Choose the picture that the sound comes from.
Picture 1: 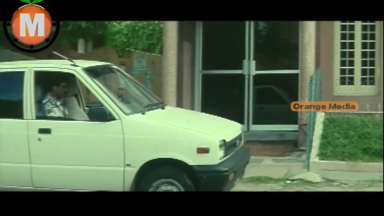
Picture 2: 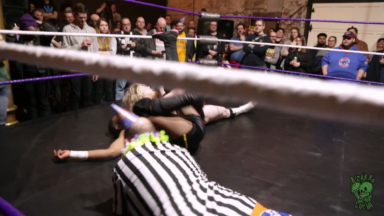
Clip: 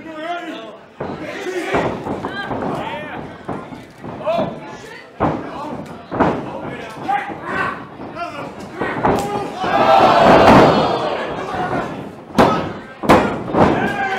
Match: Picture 2